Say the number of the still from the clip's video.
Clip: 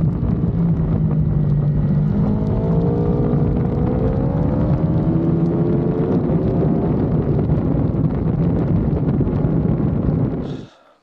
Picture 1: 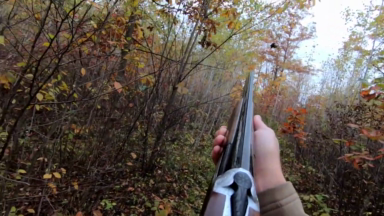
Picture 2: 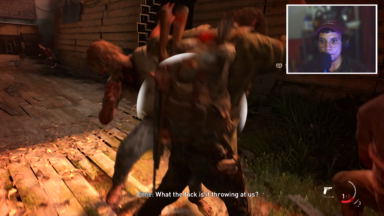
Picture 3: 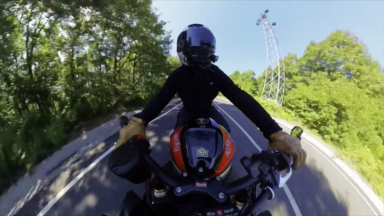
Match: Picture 3